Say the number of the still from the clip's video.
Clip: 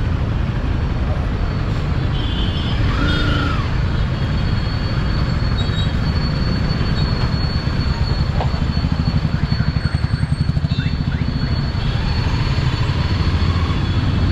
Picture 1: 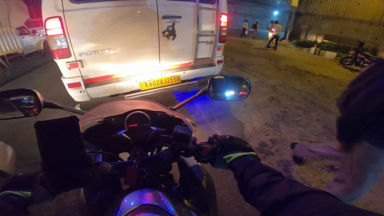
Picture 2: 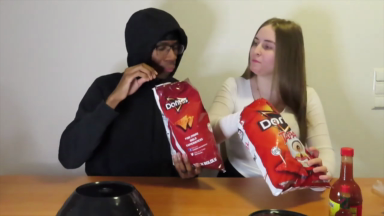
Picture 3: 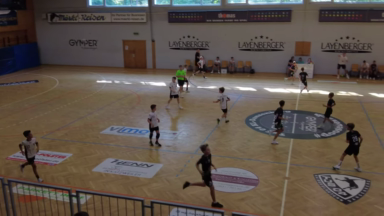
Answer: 1